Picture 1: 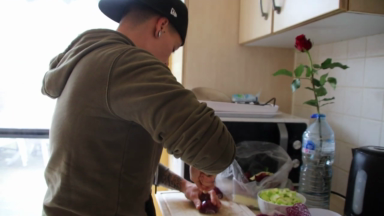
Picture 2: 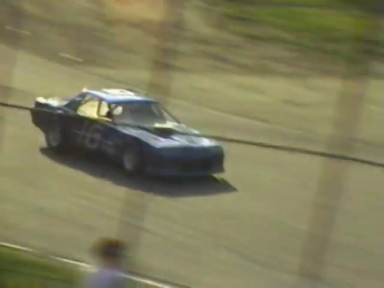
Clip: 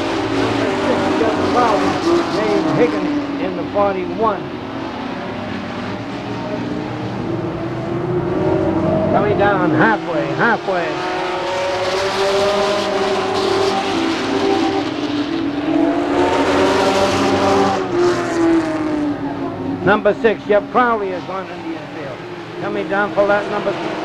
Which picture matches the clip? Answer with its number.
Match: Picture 2